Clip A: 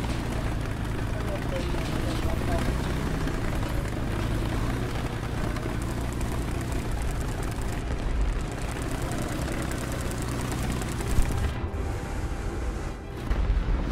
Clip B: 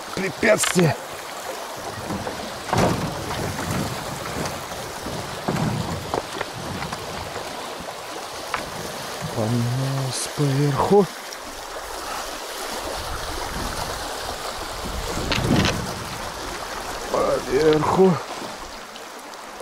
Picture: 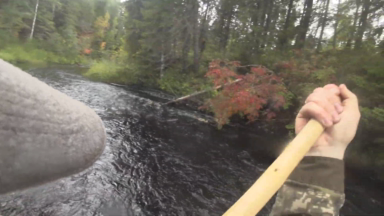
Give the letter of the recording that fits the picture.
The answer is B